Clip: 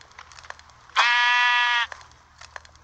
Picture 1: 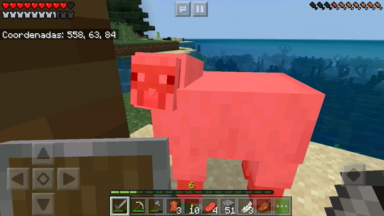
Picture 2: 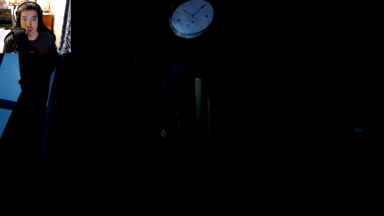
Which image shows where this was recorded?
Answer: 1